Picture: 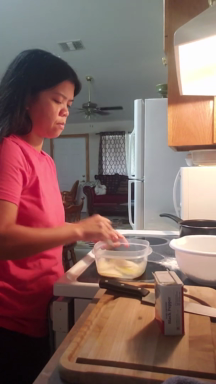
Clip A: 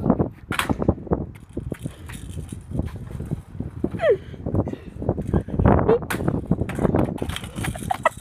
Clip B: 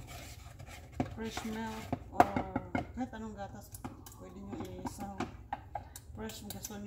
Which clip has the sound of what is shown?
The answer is B